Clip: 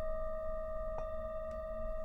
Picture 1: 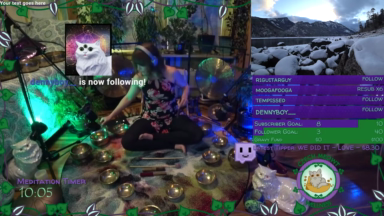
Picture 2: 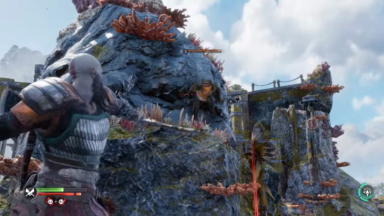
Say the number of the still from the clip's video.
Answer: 1